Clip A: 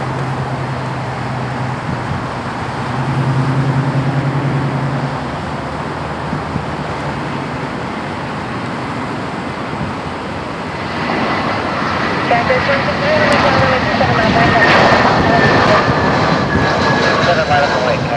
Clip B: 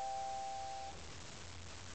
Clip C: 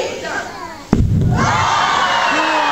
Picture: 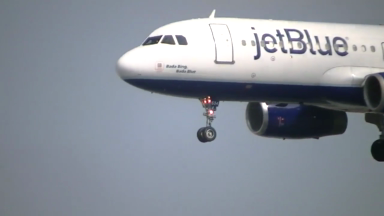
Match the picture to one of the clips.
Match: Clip A